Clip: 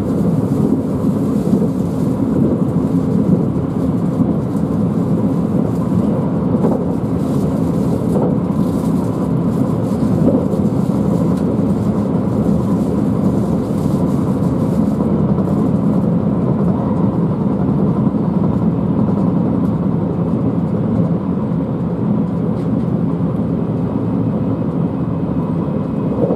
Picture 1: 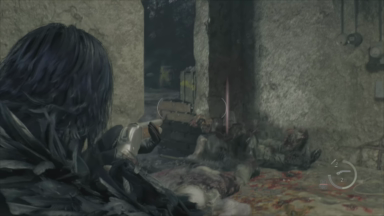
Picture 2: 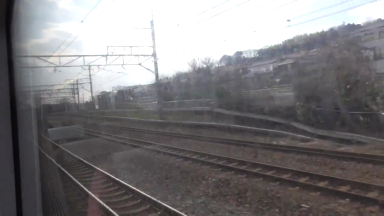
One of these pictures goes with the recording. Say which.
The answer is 2